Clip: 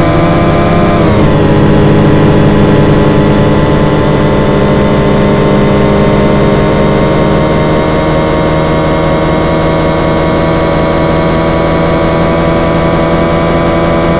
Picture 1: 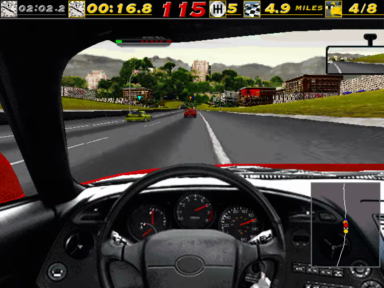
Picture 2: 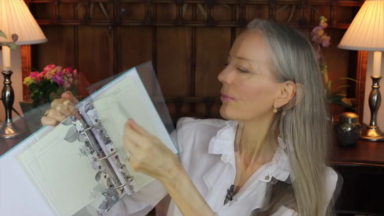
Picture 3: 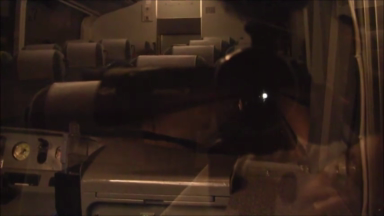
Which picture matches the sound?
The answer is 1